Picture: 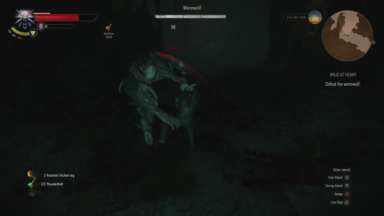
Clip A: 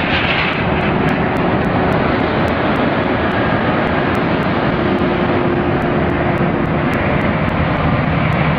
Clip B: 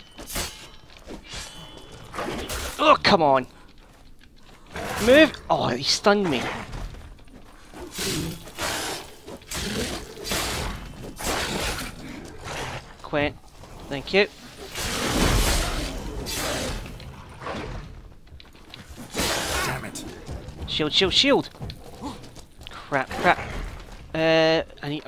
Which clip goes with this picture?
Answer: B